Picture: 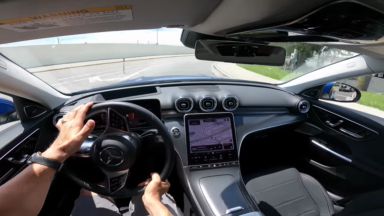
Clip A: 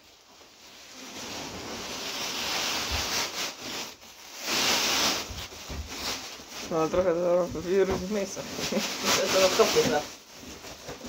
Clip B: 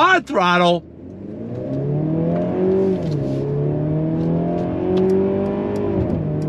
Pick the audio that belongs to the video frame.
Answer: B